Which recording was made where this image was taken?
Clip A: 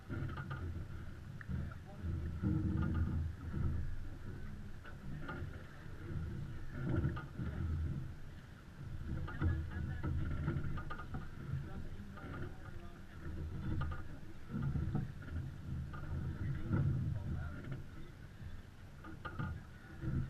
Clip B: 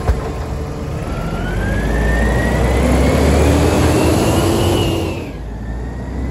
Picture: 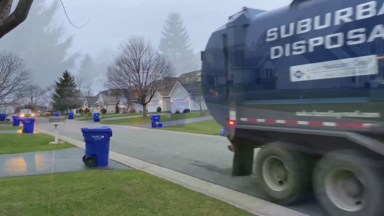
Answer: B